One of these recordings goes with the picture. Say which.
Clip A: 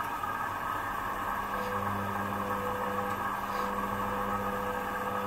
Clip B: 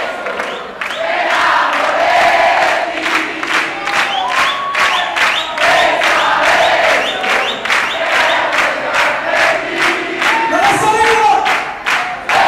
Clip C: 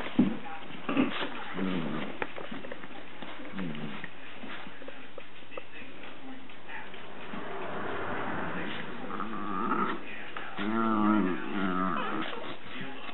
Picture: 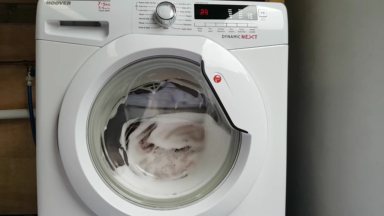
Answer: A